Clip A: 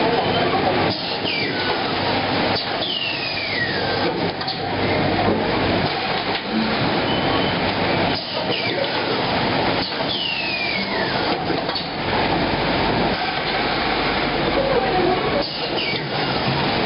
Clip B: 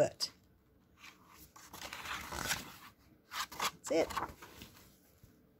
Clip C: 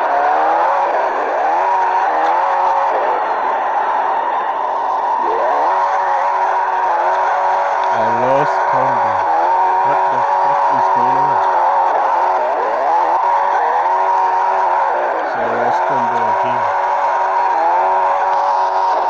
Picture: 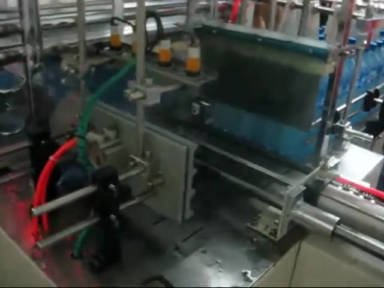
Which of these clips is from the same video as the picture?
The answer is A